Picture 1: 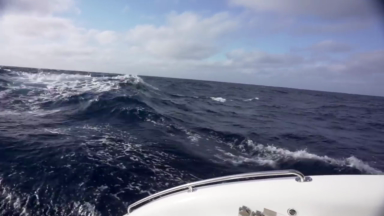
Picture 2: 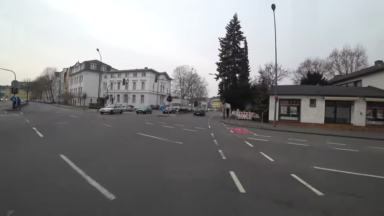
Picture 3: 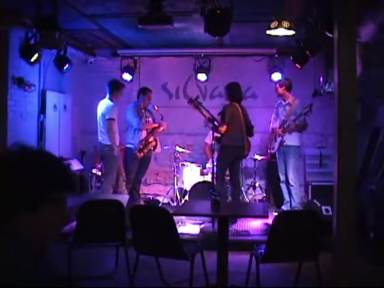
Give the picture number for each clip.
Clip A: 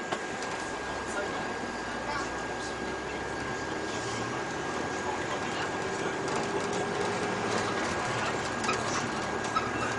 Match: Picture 2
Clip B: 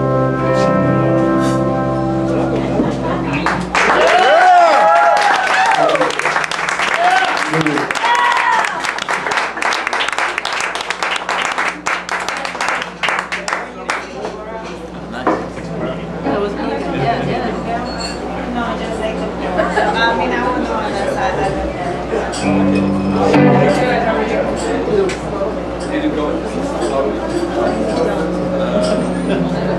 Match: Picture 3